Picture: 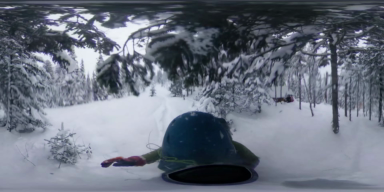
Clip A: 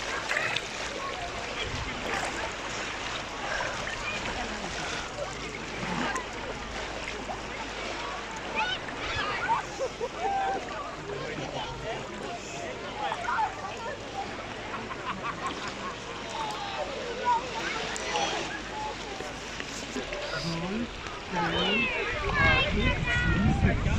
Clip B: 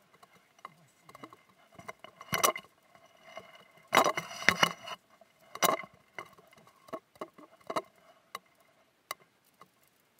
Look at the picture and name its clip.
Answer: B